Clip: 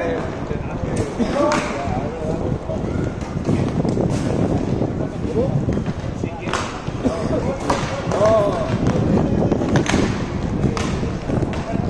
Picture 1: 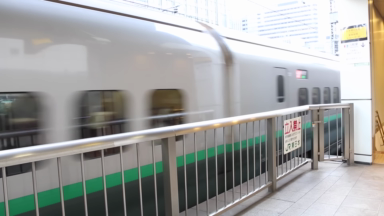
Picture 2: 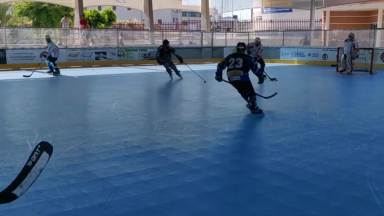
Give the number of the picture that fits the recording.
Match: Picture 2